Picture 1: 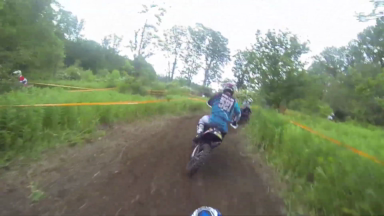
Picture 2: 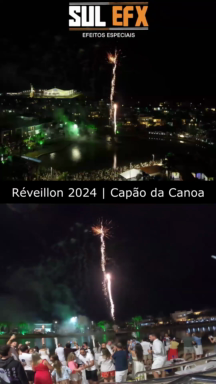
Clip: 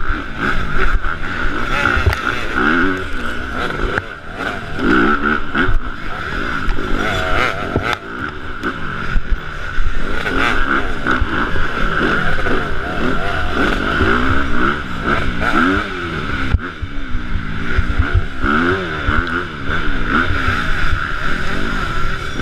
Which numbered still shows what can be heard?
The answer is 1